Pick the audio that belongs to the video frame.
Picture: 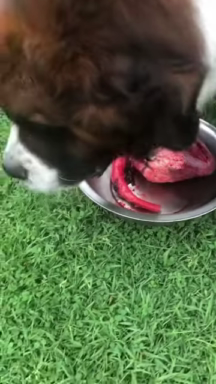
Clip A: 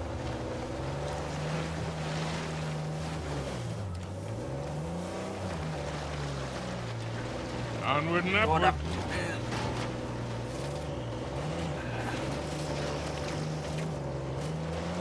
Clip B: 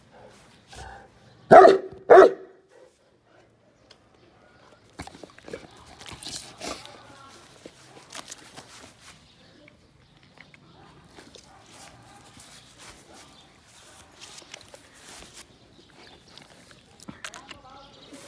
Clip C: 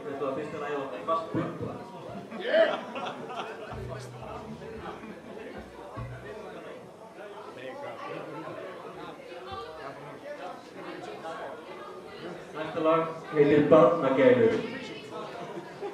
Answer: B